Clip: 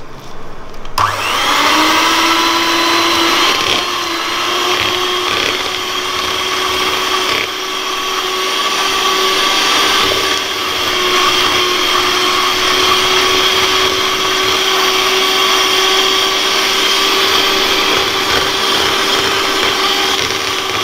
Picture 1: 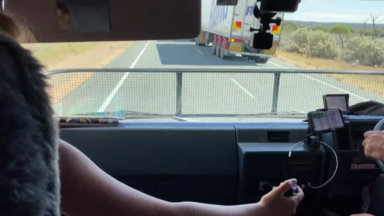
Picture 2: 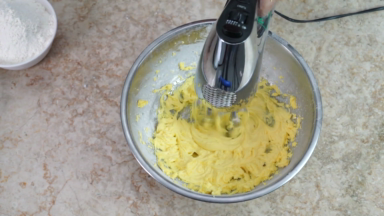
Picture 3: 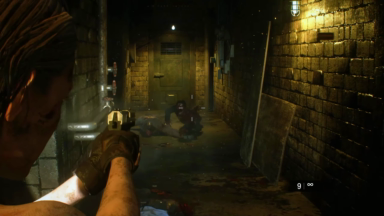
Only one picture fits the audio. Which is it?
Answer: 2